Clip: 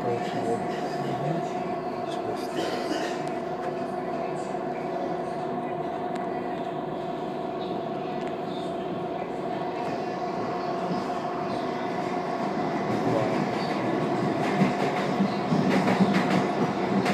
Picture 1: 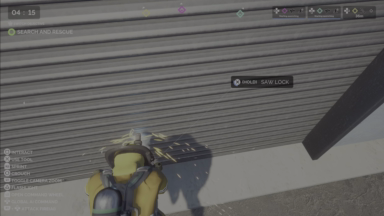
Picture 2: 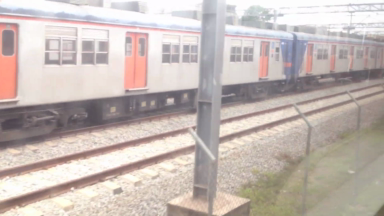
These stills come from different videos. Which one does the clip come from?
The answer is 2